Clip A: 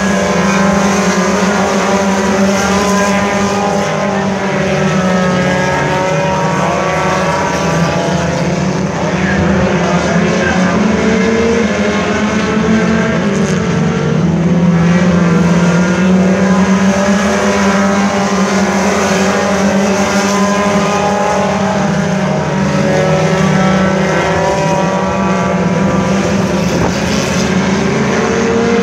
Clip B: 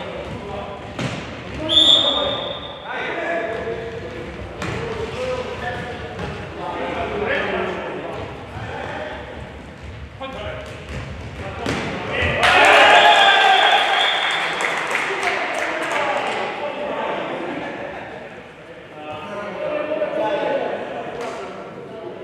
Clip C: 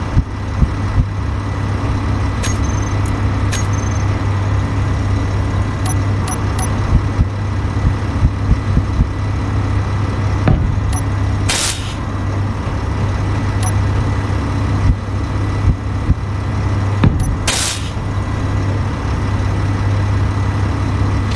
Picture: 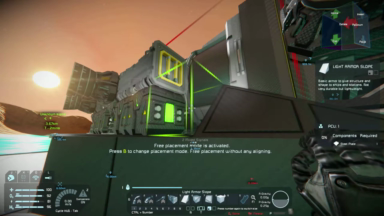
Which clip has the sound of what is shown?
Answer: C